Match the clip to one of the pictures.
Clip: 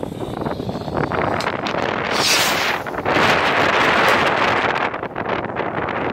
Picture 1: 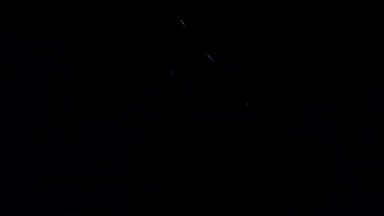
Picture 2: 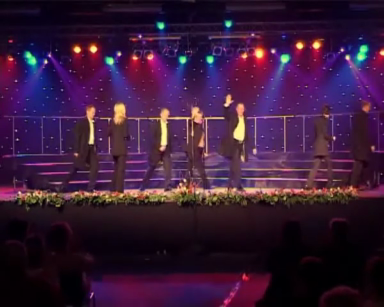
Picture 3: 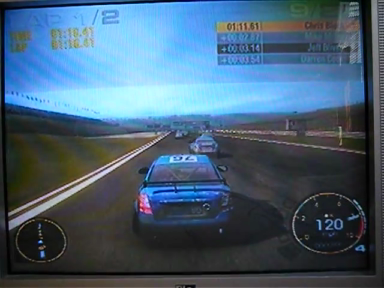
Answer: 1